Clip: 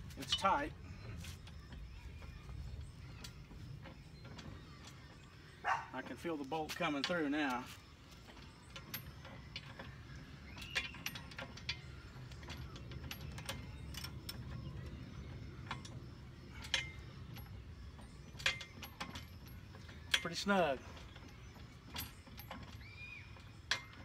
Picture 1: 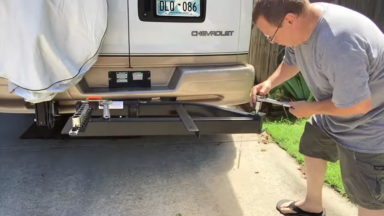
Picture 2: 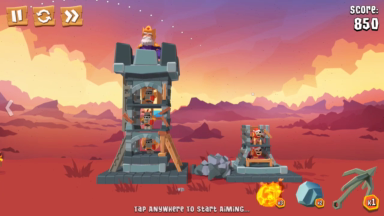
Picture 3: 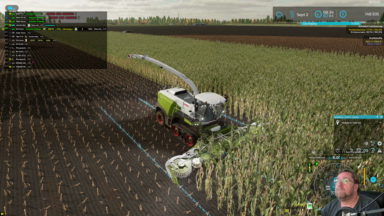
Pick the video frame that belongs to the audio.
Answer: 1